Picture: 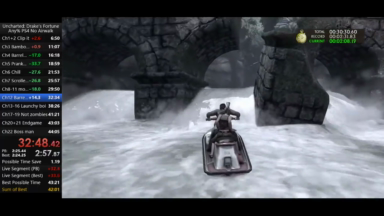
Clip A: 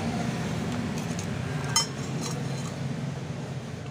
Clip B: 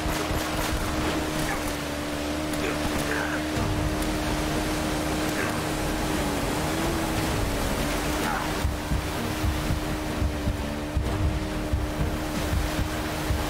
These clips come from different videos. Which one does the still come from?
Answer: B